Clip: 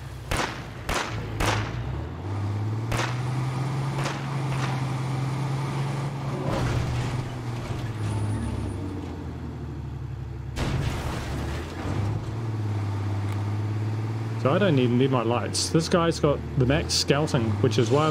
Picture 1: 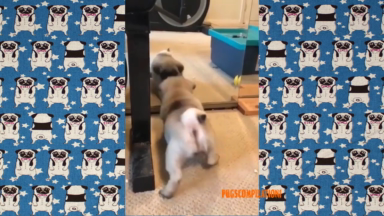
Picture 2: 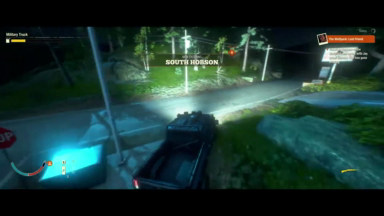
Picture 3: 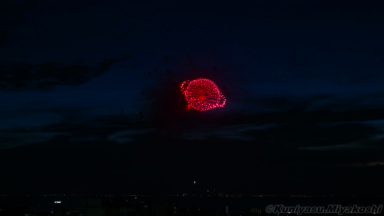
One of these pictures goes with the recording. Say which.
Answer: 2